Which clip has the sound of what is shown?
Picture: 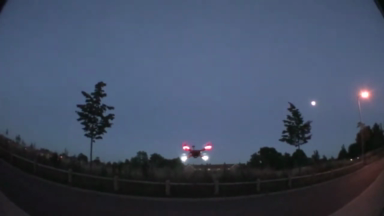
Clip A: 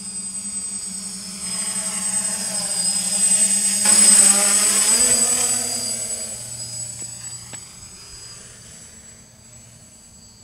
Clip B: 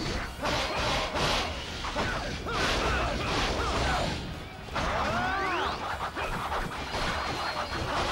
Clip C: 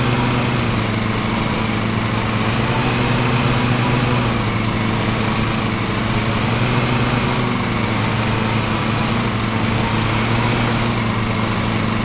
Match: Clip A